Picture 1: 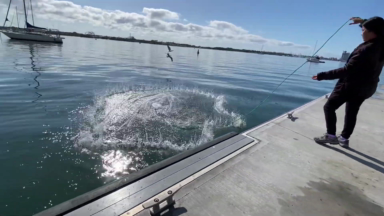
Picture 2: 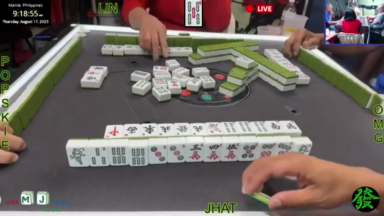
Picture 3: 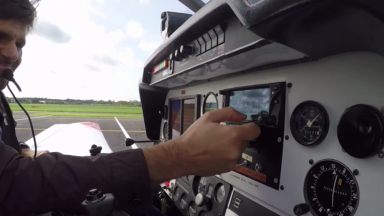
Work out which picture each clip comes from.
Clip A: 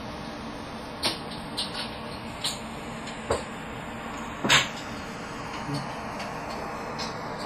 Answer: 2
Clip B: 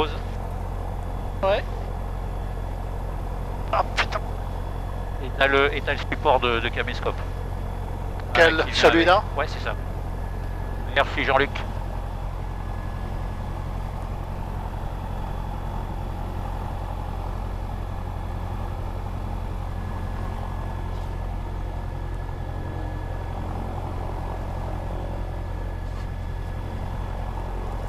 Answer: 3